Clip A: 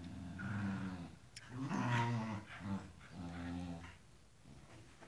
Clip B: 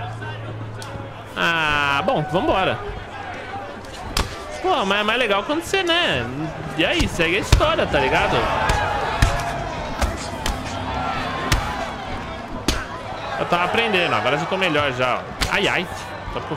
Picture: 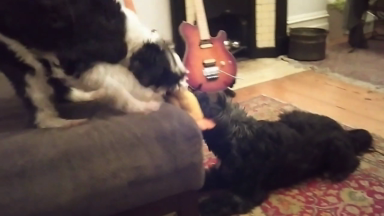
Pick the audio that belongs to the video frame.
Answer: A